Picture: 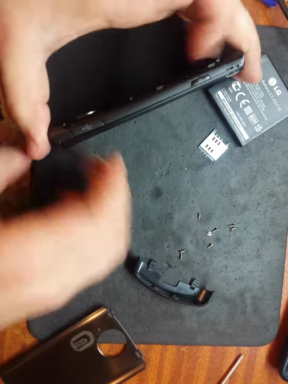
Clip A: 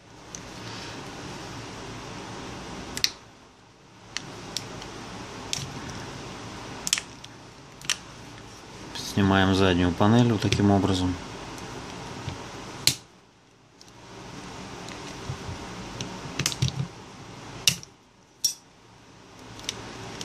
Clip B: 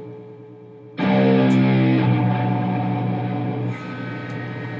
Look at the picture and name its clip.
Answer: A